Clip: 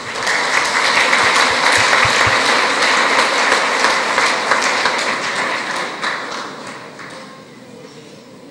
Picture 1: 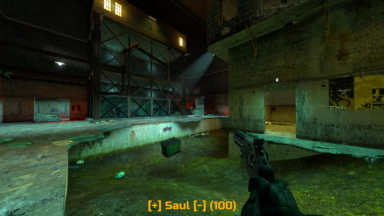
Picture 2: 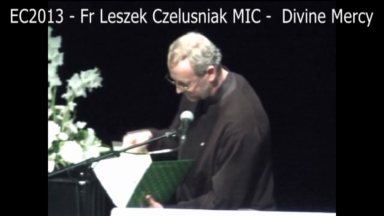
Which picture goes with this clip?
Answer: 2